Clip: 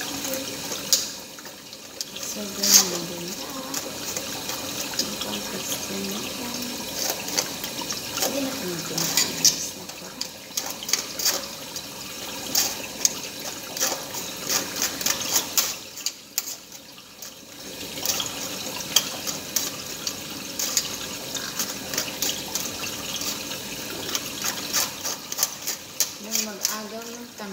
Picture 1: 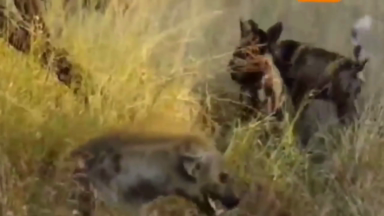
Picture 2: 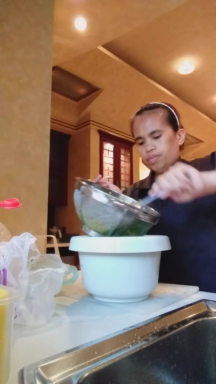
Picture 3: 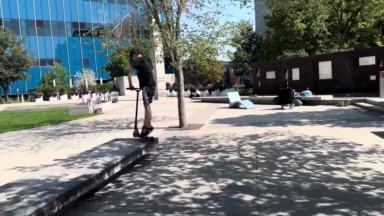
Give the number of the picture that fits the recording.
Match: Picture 2